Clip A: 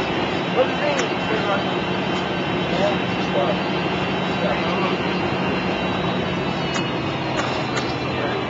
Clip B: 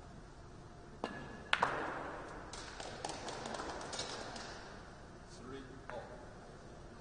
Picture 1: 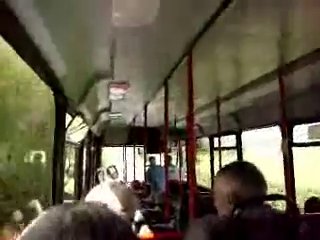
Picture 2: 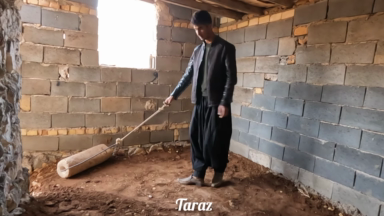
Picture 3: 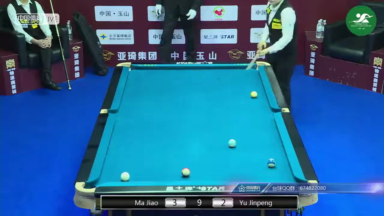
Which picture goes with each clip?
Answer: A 1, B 3